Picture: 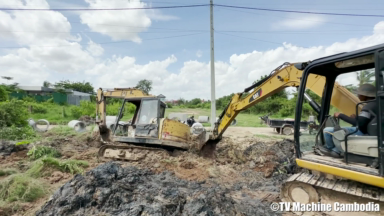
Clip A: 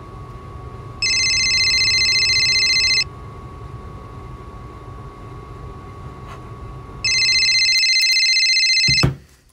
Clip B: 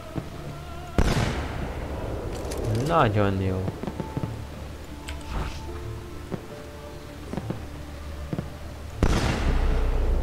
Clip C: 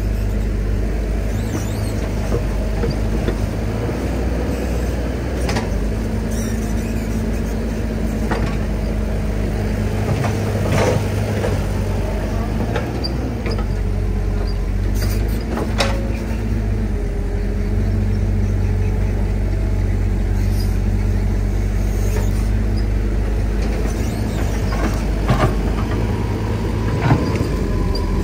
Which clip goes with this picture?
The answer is C